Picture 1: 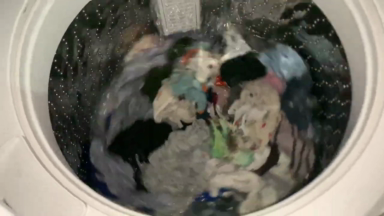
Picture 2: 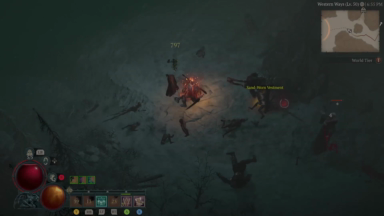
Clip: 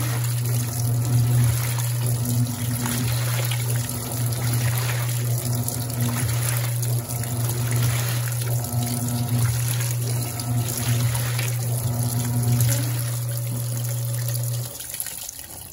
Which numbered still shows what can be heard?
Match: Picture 1